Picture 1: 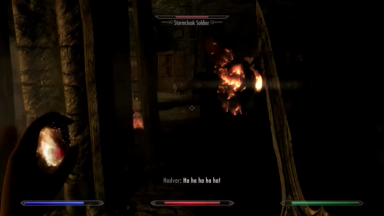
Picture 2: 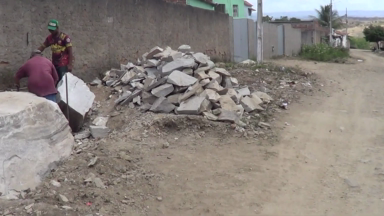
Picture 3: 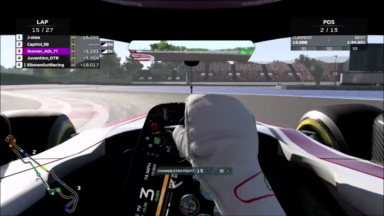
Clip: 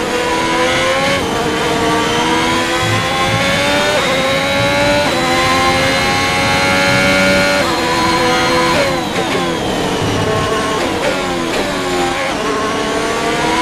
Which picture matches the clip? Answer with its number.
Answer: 3